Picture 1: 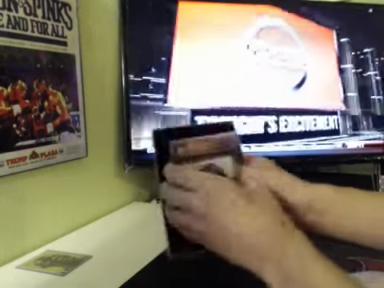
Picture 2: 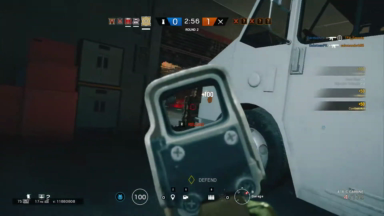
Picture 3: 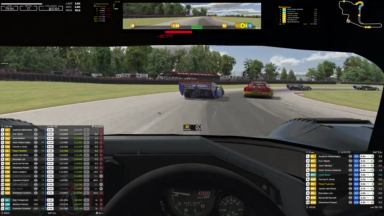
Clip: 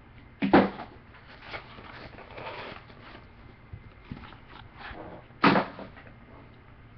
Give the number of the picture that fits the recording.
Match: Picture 1